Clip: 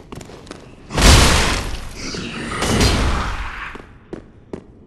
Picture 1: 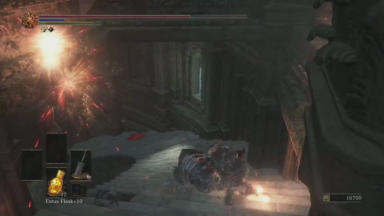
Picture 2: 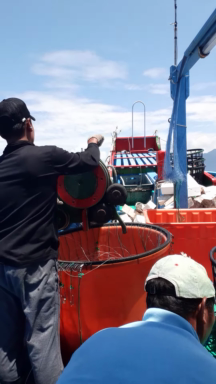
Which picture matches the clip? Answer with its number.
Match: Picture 1